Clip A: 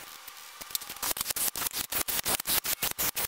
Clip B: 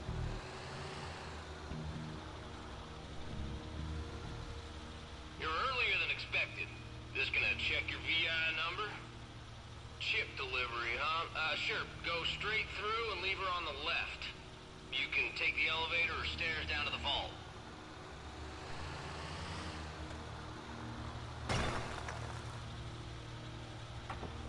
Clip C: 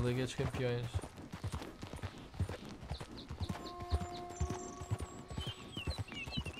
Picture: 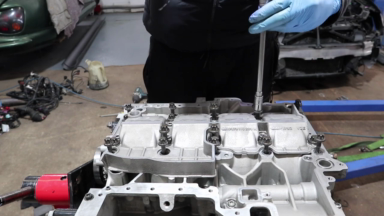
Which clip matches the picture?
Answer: A